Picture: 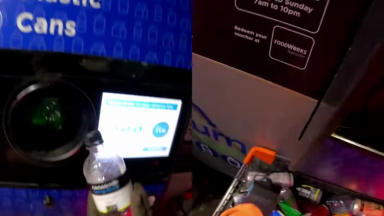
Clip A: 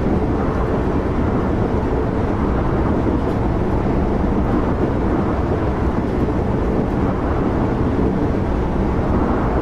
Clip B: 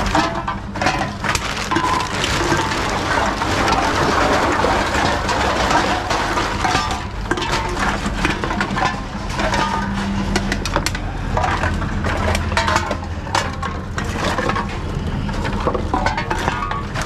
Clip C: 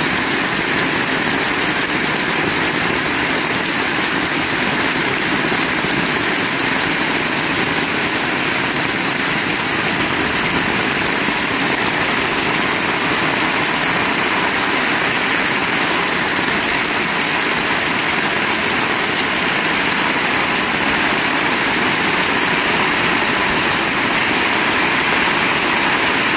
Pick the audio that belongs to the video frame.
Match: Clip B